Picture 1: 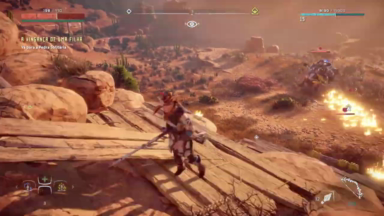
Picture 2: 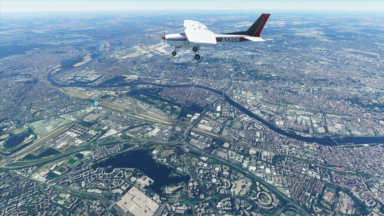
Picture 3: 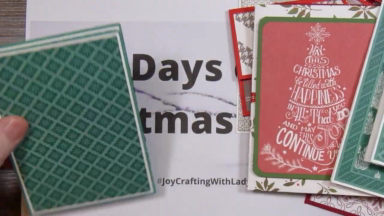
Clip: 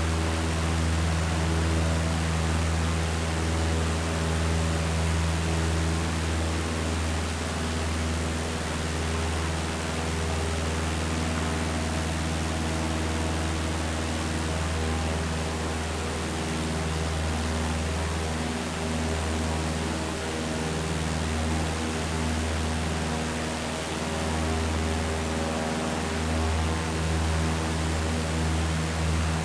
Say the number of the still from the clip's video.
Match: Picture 2